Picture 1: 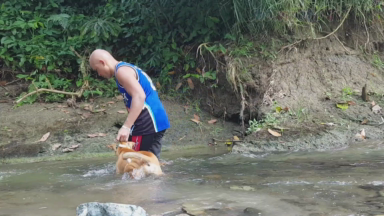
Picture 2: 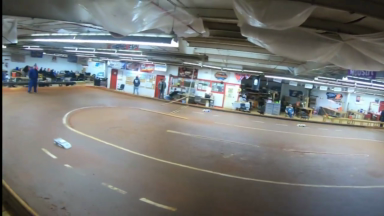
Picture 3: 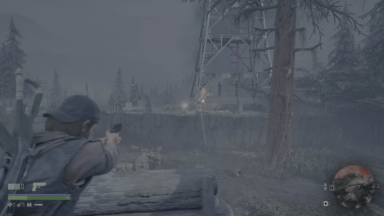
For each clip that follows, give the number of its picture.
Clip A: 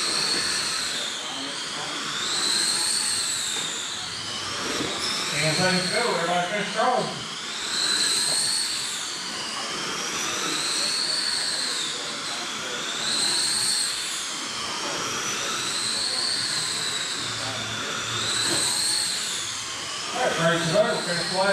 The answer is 2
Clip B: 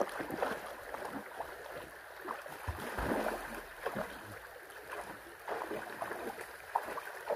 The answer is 1